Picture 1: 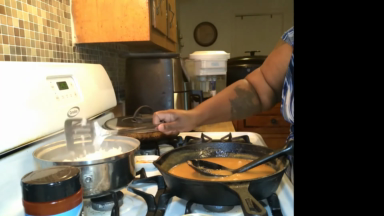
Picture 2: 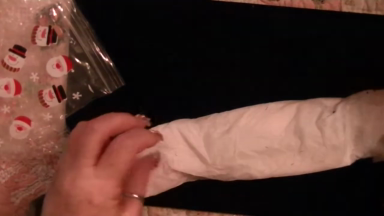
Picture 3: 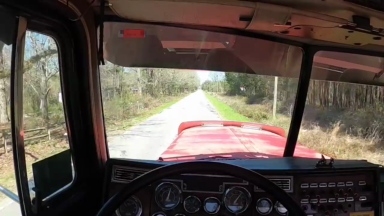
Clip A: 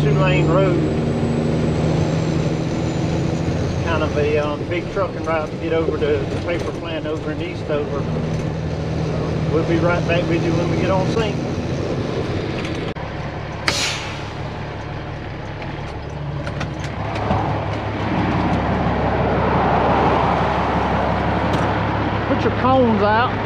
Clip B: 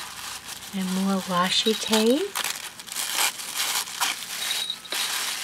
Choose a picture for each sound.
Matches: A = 3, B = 2